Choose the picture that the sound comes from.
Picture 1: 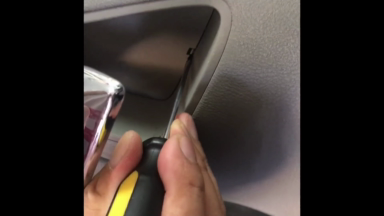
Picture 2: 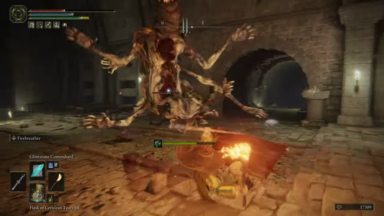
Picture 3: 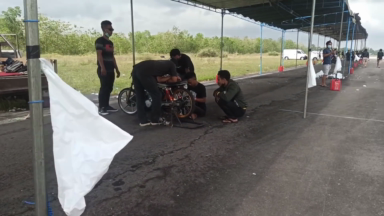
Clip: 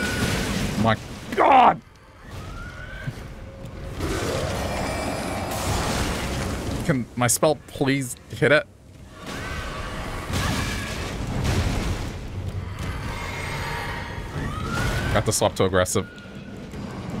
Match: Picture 2